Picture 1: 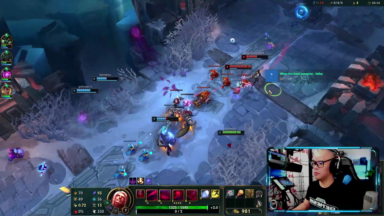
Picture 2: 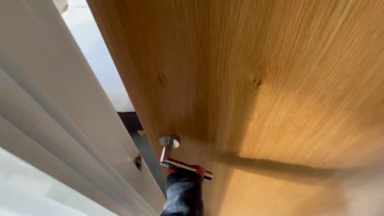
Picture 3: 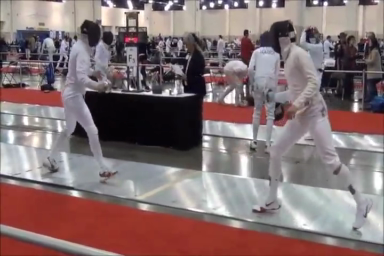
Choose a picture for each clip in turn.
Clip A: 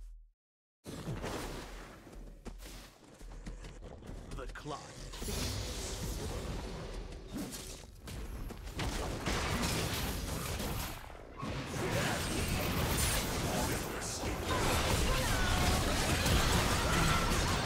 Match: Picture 1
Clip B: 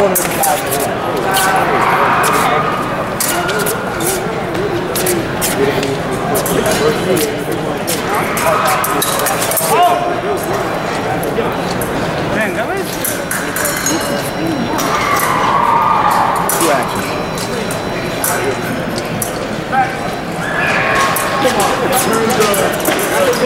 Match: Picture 3